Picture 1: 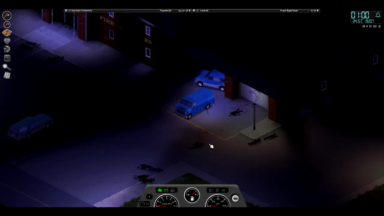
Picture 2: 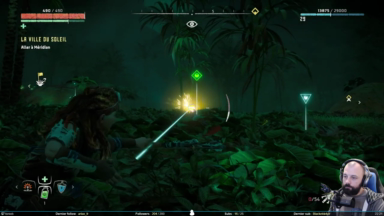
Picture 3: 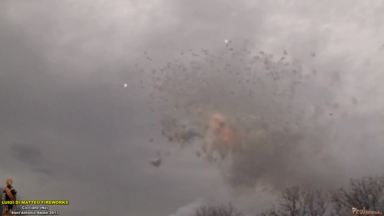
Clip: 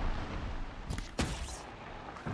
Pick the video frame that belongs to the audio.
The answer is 2